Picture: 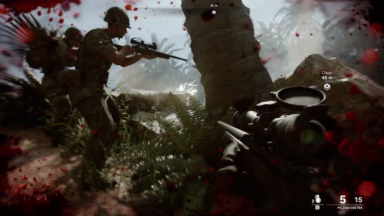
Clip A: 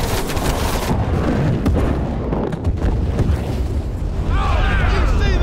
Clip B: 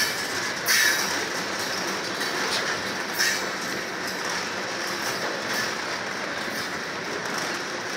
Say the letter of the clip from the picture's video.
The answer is A